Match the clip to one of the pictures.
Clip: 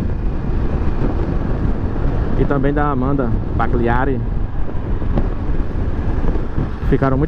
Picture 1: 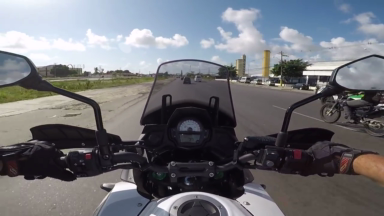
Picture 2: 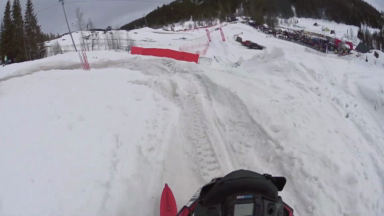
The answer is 1